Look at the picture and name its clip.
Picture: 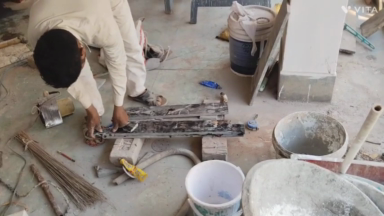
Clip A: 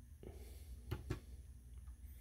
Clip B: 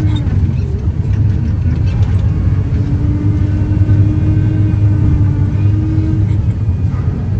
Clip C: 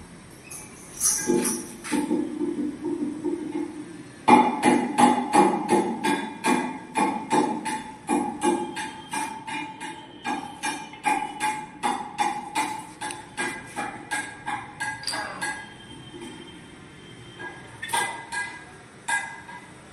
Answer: C